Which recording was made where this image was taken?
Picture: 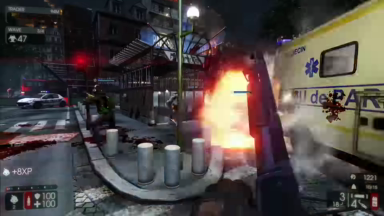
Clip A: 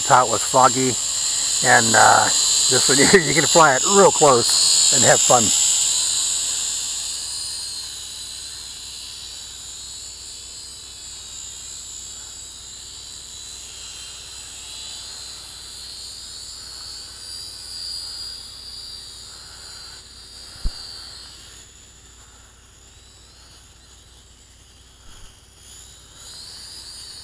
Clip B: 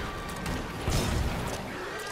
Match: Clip B